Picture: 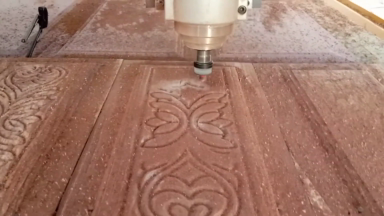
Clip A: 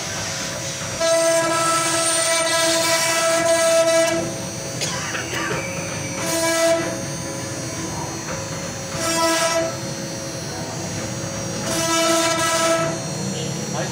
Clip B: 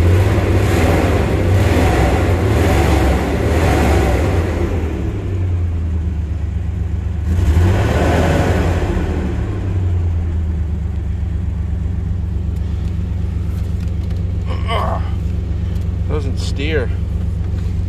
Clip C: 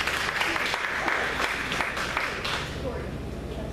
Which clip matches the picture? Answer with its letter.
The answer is A